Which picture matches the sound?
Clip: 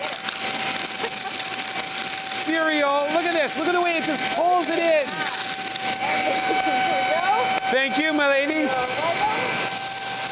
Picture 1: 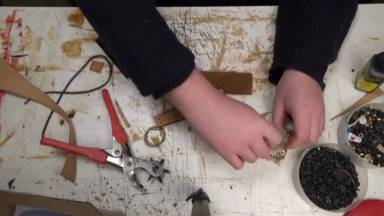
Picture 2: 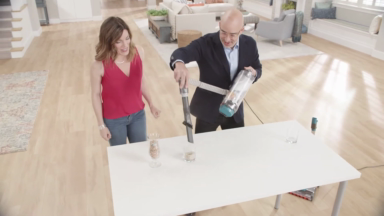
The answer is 2